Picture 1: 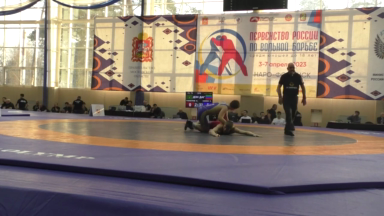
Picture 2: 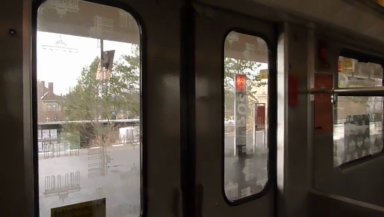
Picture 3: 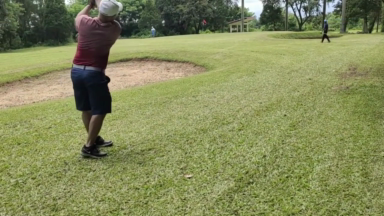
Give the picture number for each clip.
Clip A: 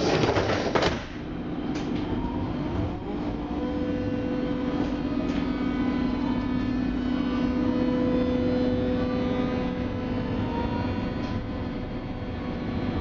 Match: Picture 2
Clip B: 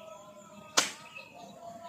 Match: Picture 3